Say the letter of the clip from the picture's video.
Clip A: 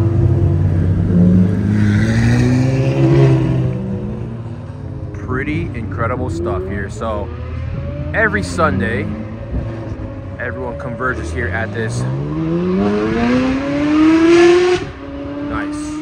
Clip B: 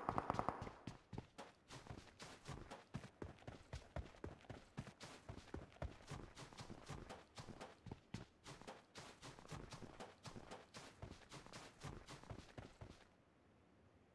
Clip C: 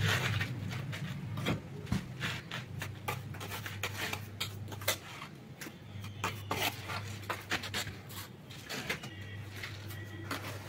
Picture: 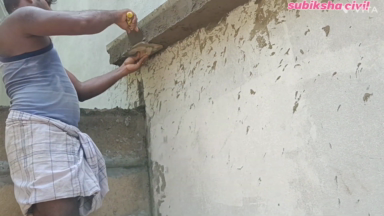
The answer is C